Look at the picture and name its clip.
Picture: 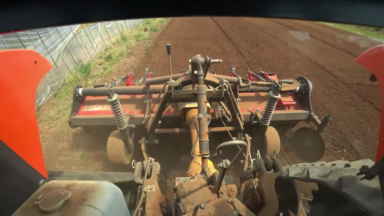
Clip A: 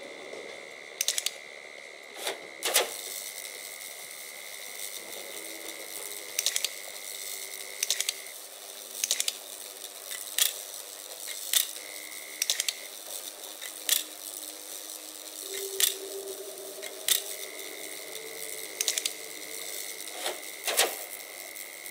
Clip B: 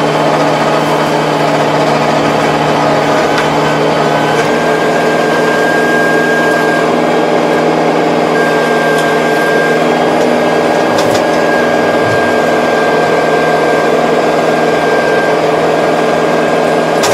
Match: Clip B